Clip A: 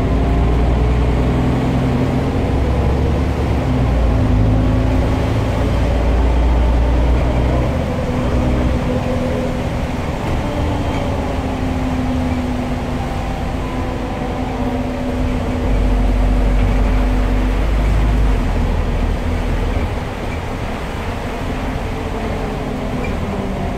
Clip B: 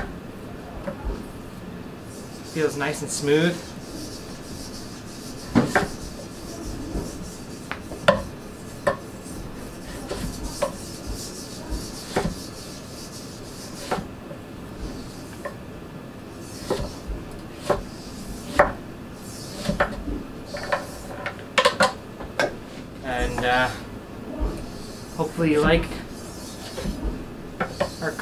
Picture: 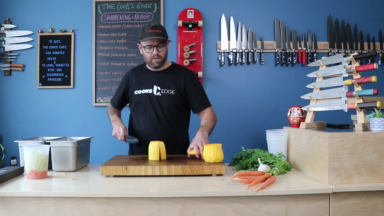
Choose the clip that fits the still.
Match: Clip B